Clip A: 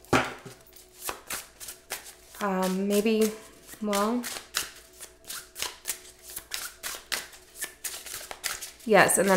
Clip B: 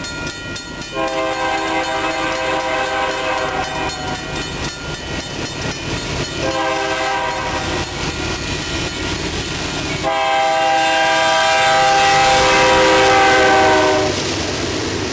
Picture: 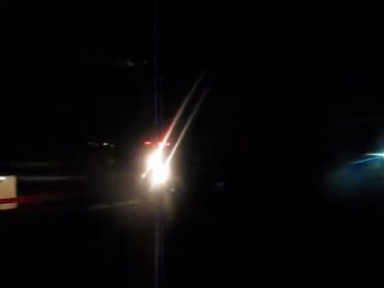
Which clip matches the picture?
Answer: B